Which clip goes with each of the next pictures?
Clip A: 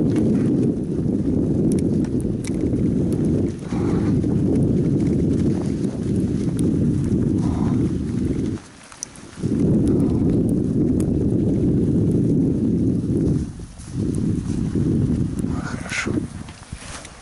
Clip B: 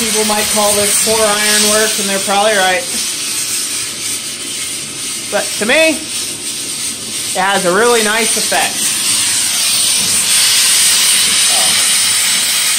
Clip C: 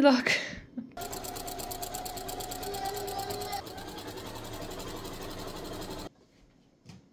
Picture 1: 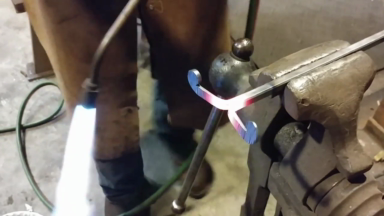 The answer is B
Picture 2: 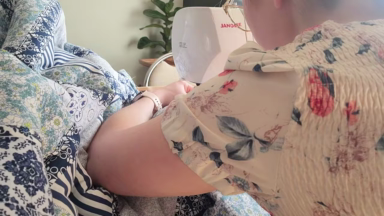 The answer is C